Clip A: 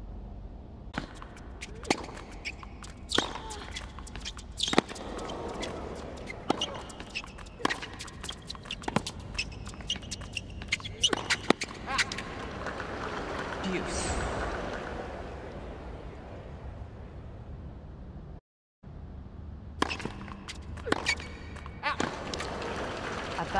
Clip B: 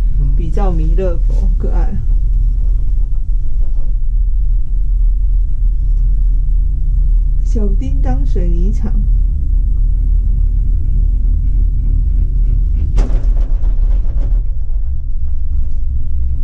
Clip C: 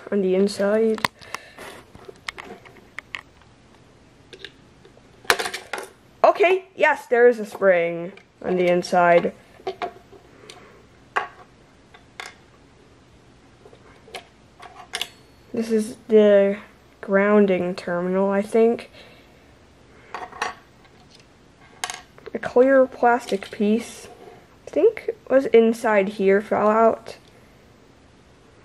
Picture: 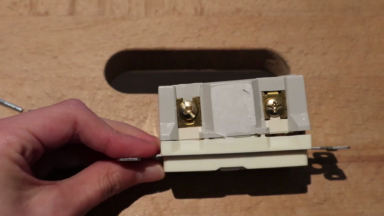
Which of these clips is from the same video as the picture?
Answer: C